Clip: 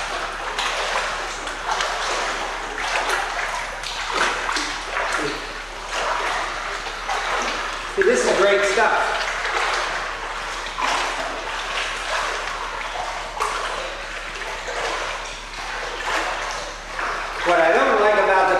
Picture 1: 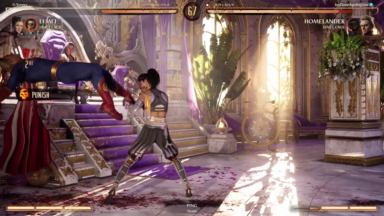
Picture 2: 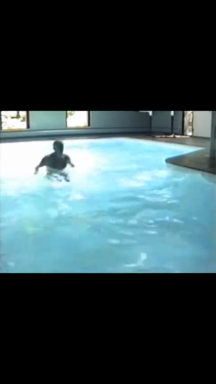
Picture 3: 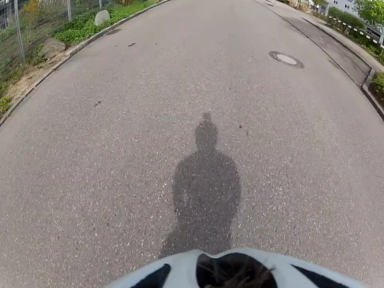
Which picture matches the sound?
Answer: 2